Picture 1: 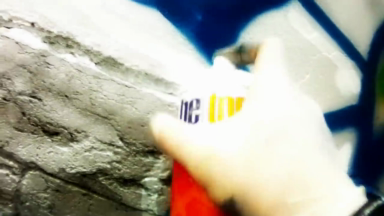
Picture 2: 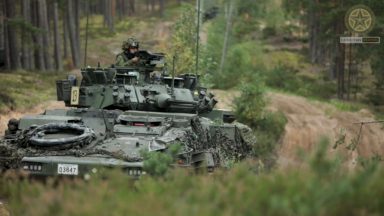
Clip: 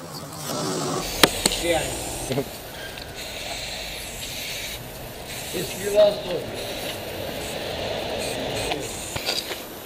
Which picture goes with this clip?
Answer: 1